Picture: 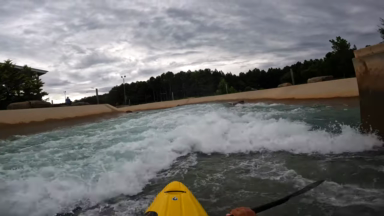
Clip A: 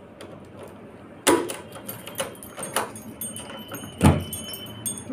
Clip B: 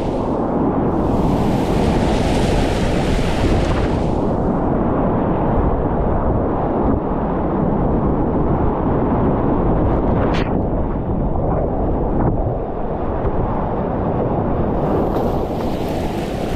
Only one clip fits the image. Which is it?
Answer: B